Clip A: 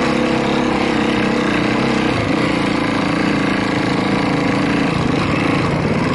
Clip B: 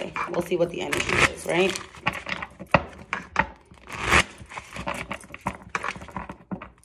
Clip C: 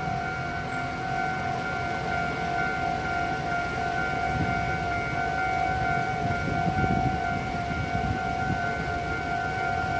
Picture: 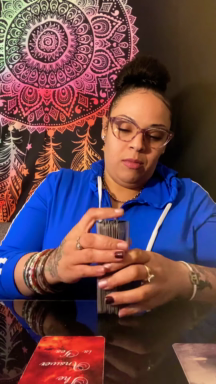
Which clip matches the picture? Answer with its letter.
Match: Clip B